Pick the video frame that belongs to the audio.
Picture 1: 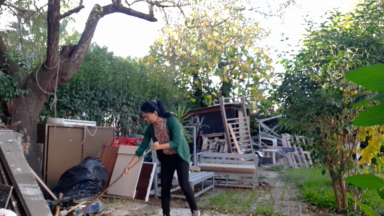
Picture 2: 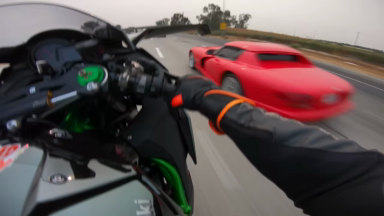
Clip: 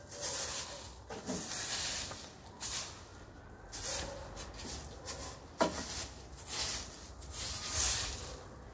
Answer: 1